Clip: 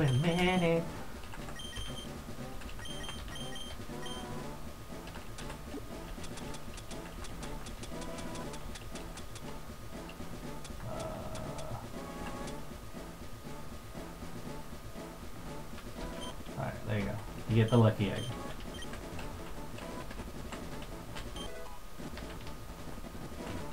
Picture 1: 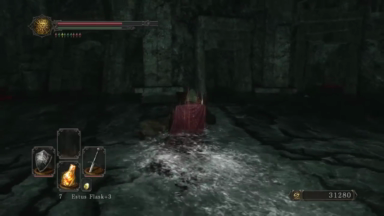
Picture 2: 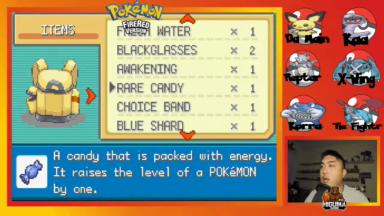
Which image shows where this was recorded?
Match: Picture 2